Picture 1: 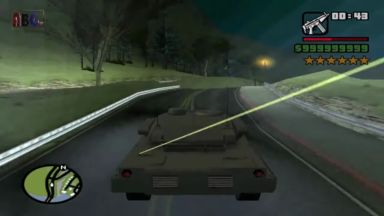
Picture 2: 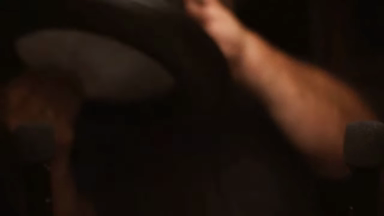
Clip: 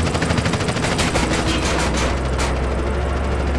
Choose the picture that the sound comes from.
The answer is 1